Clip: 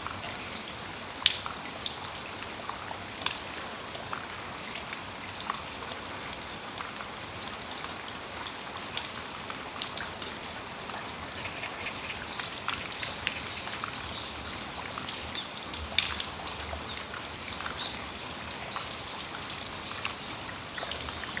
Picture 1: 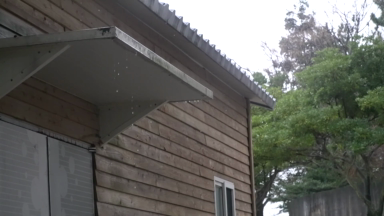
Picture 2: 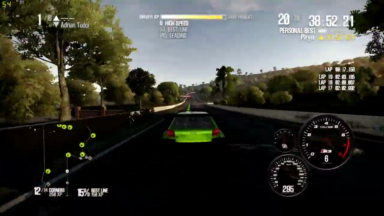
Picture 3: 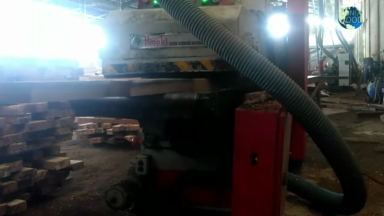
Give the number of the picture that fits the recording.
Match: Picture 1